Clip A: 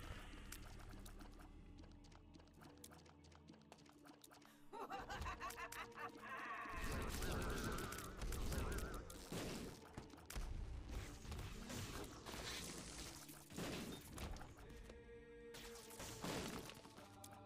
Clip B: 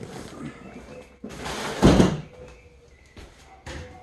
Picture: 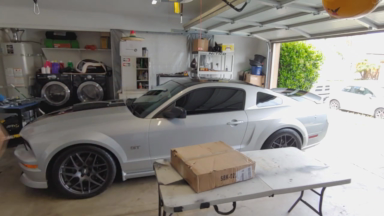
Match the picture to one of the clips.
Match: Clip B